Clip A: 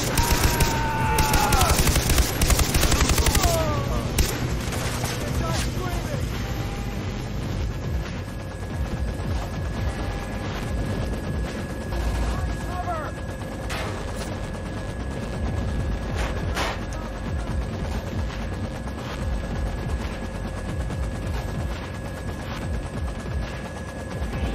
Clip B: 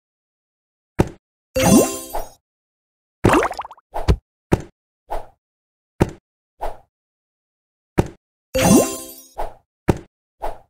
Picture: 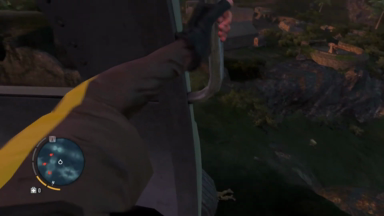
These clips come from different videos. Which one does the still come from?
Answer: A